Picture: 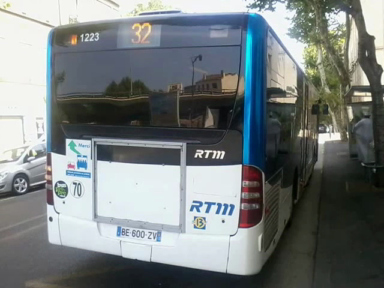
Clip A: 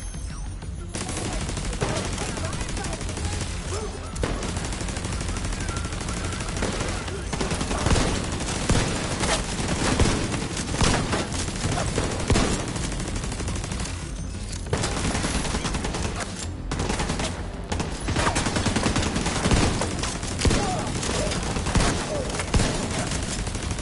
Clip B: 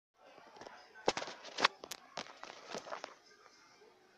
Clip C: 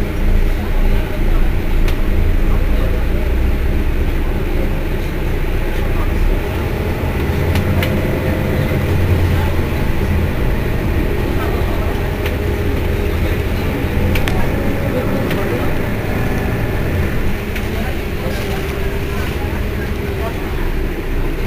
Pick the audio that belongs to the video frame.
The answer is C